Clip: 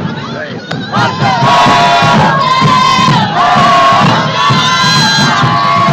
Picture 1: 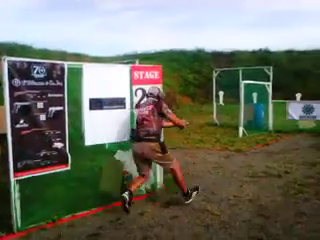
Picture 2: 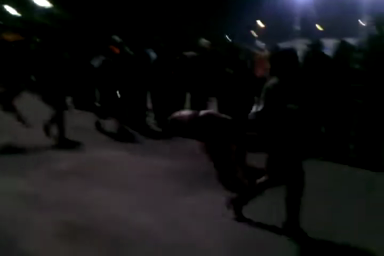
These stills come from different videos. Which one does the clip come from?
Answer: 2